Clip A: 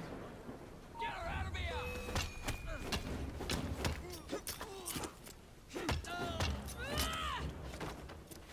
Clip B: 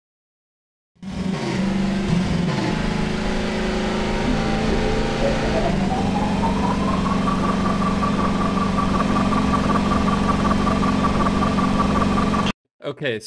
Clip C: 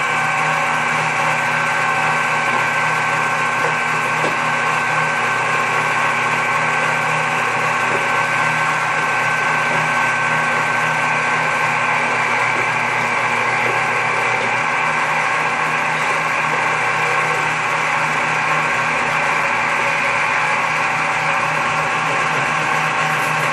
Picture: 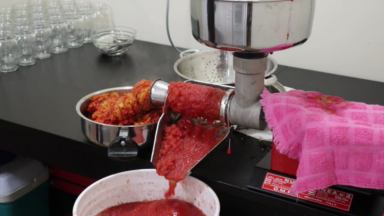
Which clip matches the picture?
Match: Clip C